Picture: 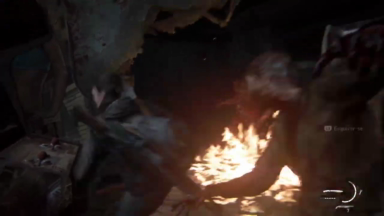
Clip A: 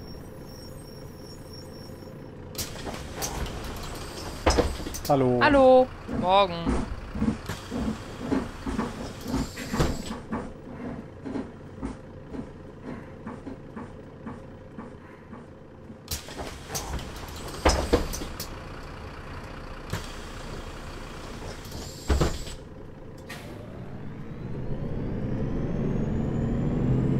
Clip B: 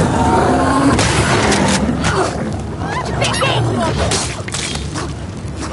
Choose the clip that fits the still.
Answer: B